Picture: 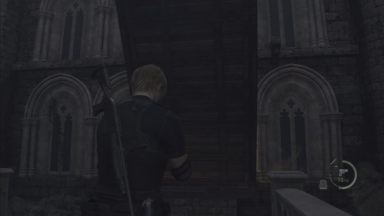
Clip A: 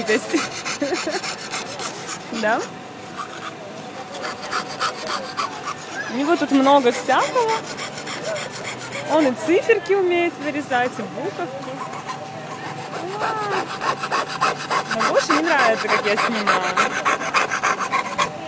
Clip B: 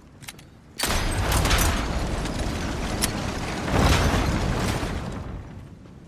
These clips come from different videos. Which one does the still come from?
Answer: B